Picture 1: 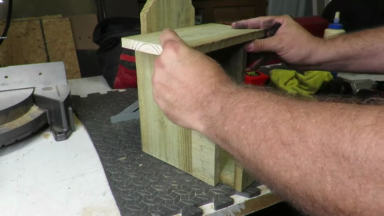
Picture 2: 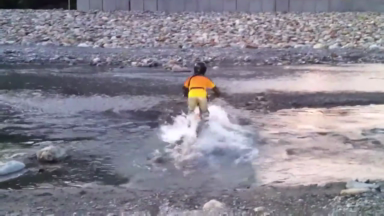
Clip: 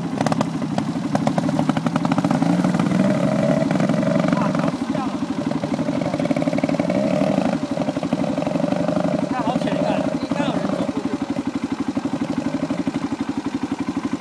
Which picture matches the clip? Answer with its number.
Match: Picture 2